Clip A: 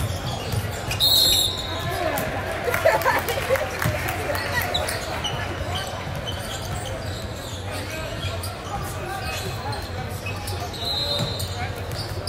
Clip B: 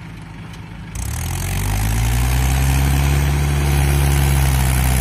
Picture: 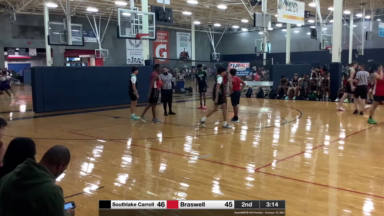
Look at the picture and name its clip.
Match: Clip A